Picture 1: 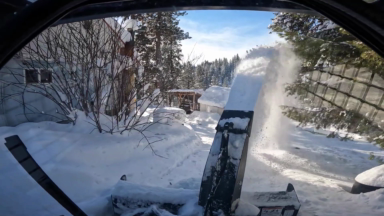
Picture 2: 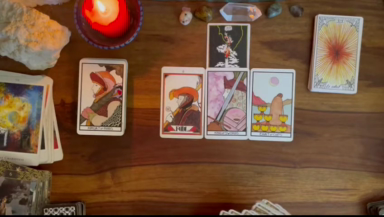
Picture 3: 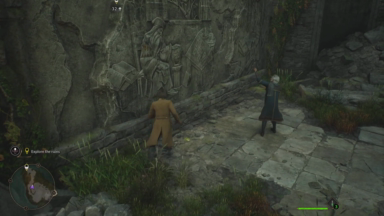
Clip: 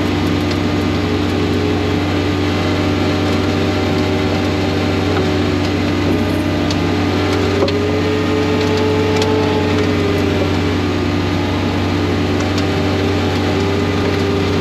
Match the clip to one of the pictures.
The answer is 1